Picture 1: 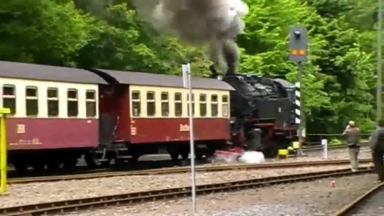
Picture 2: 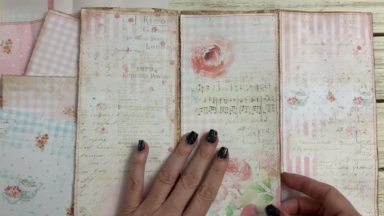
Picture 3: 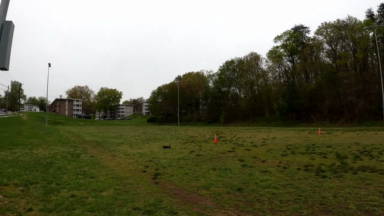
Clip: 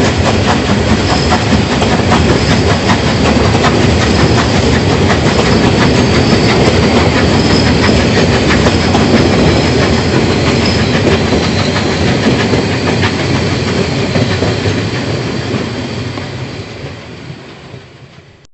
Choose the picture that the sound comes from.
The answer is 1